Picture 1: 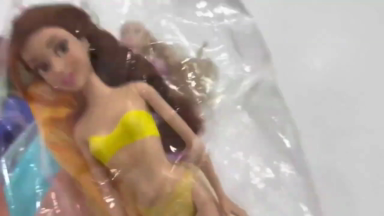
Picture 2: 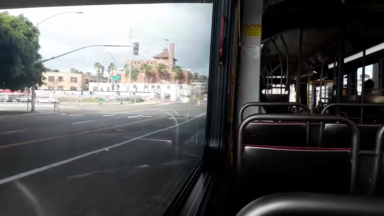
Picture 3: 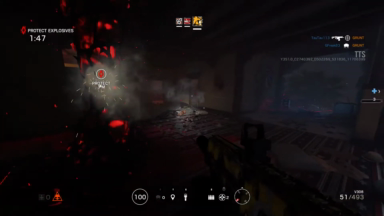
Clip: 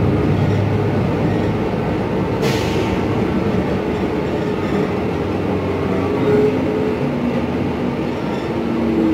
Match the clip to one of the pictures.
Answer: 2